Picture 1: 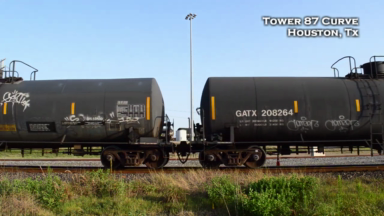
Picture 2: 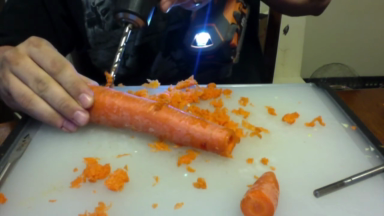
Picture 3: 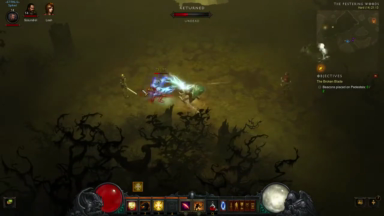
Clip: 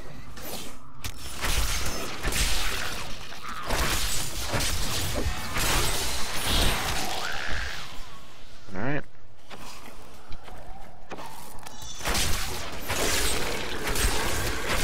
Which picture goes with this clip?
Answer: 3